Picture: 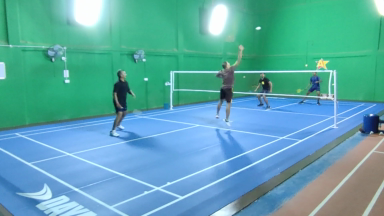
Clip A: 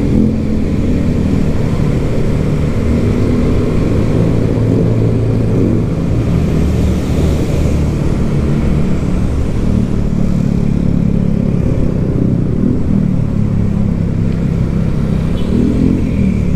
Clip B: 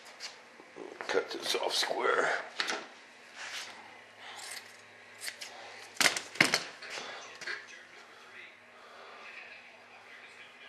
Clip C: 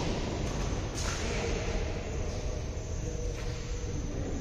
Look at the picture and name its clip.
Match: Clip C